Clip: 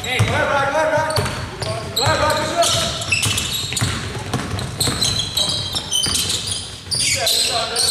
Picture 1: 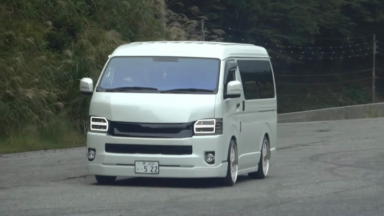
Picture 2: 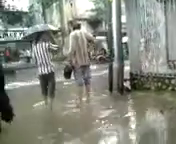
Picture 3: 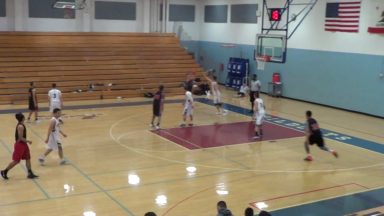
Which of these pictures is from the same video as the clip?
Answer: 3